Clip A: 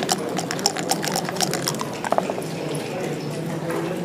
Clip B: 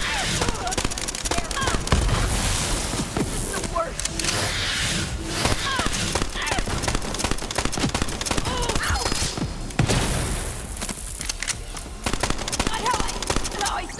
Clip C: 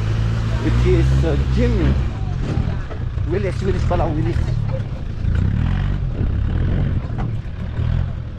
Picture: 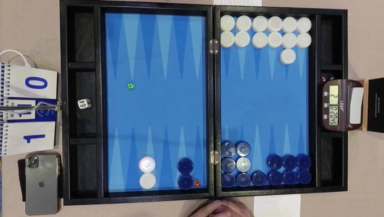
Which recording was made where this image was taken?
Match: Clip A